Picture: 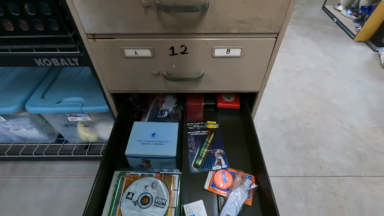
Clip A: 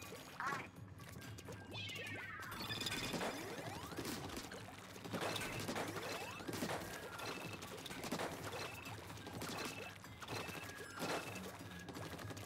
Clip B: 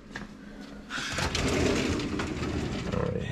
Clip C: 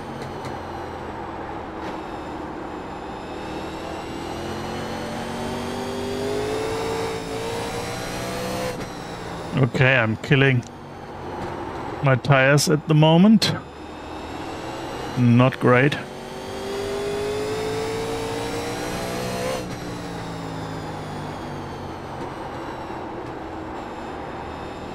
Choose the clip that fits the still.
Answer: B